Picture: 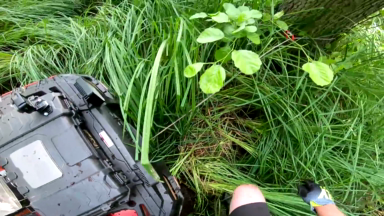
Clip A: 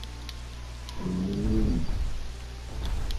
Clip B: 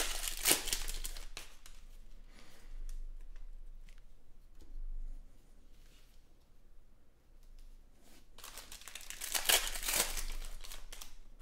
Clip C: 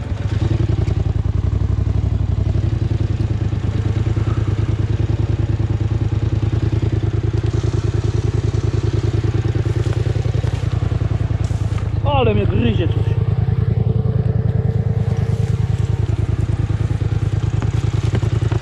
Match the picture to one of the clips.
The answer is C